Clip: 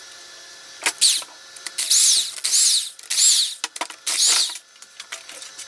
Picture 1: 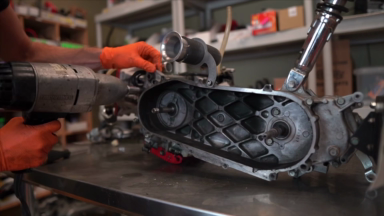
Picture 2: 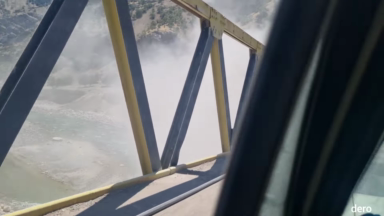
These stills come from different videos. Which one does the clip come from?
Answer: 1